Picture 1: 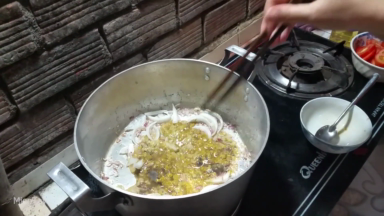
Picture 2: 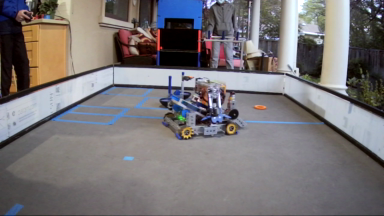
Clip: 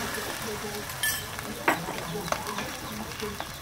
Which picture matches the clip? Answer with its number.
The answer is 1